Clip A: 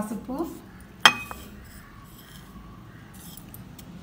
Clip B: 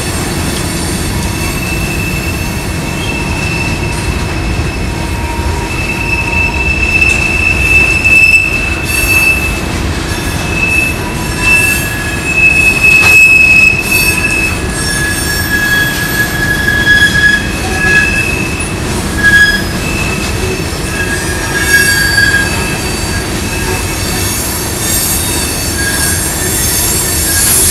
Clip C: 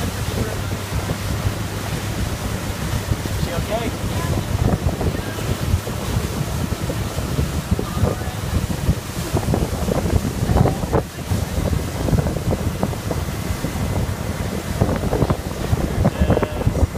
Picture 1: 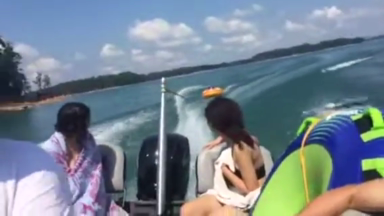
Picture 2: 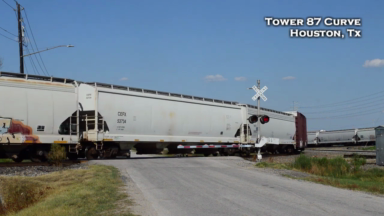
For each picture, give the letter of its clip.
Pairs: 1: C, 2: B